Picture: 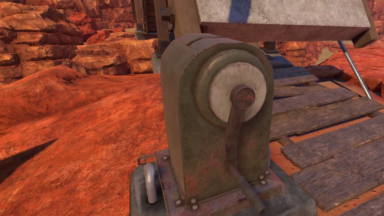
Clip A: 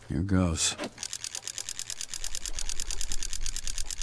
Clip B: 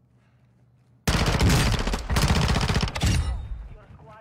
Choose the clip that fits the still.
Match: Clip A